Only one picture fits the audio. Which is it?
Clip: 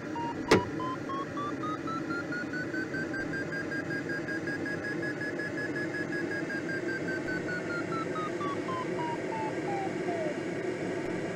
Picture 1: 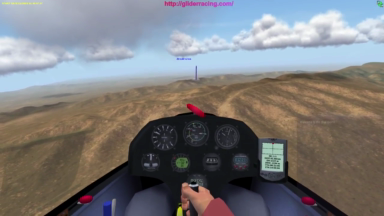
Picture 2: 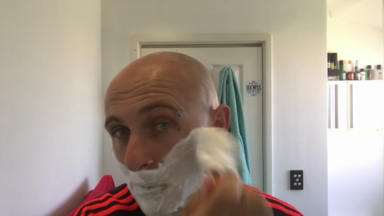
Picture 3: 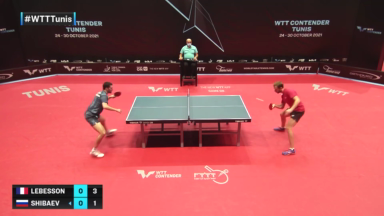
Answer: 1